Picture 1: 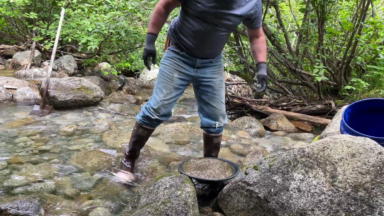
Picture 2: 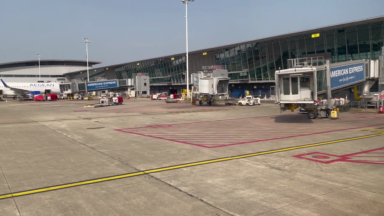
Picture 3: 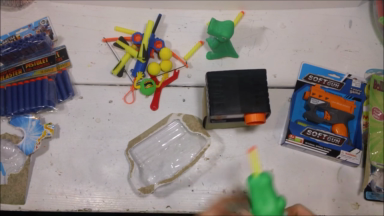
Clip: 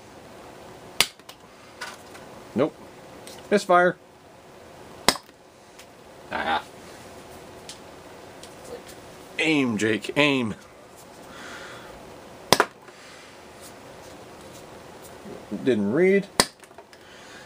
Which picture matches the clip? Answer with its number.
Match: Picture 3